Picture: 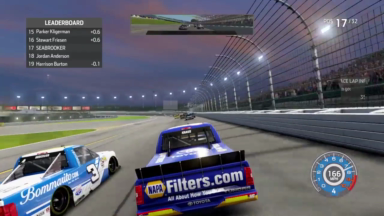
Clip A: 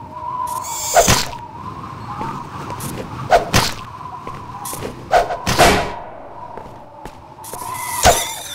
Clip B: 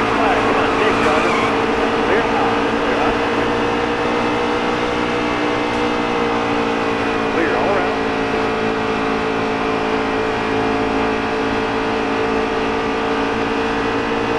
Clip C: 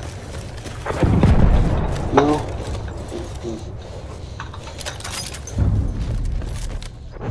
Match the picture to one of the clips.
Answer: B